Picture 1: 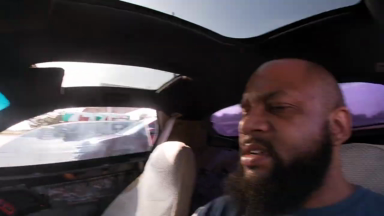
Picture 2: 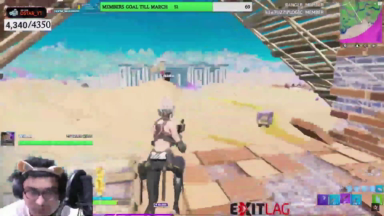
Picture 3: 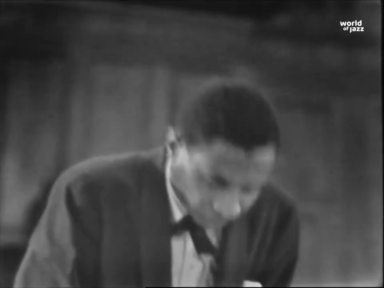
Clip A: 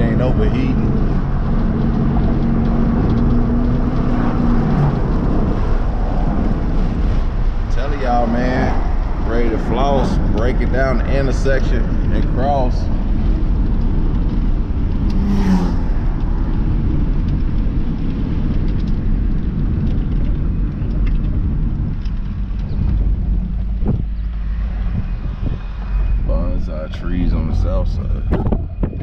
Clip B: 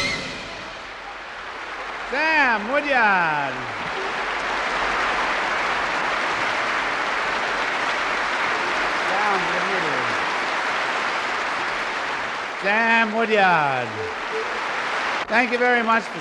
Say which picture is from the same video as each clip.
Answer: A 1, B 3